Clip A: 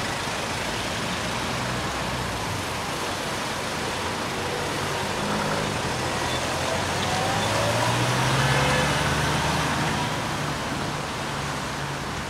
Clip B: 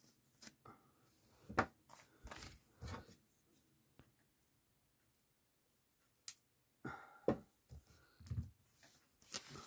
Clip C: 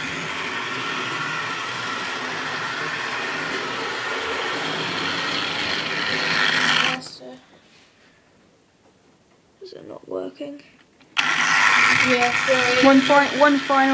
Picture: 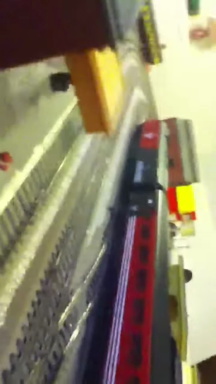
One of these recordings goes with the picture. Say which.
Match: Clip C